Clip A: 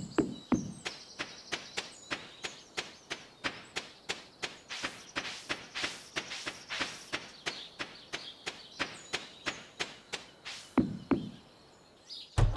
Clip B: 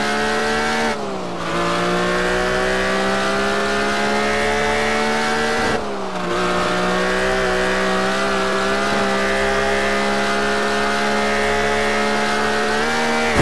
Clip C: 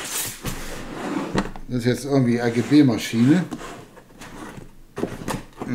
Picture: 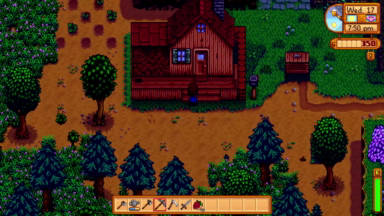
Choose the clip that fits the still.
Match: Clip A